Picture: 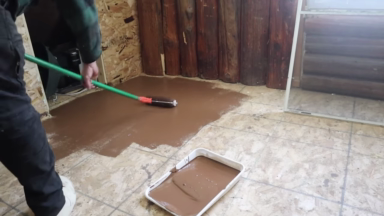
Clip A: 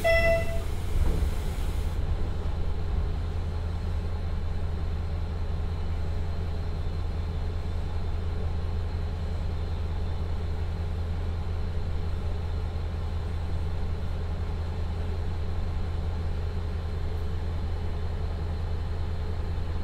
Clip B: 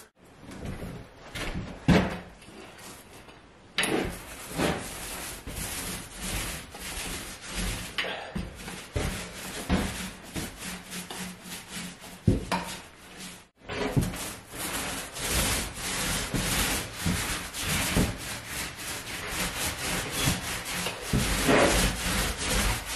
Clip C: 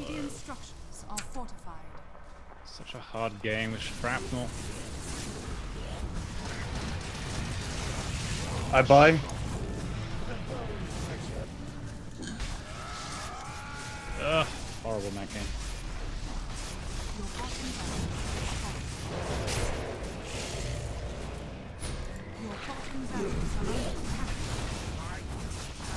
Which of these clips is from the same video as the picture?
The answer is B